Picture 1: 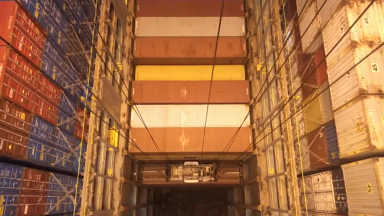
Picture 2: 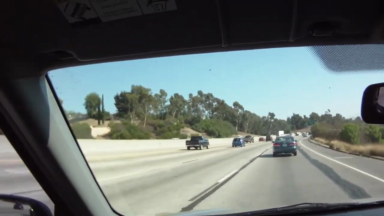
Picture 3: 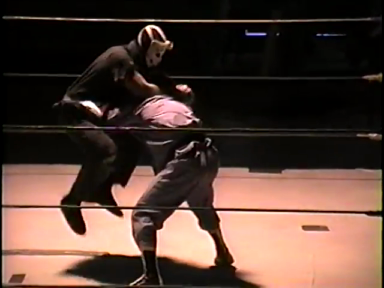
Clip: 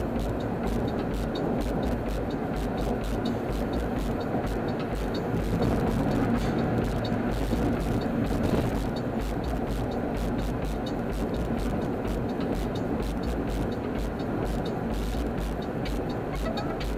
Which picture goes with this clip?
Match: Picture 2